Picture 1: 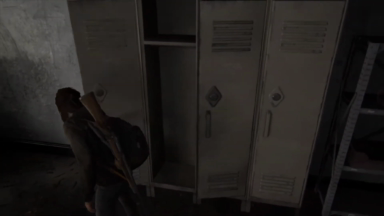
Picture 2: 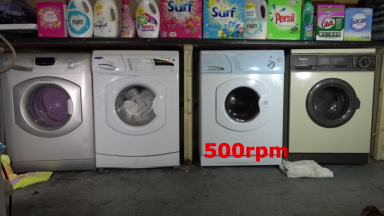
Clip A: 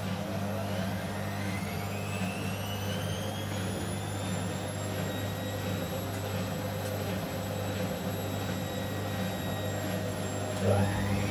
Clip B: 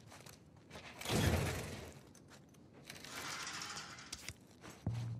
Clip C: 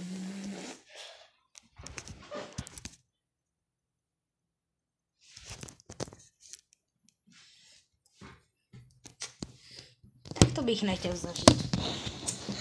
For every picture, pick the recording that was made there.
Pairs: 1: B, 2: A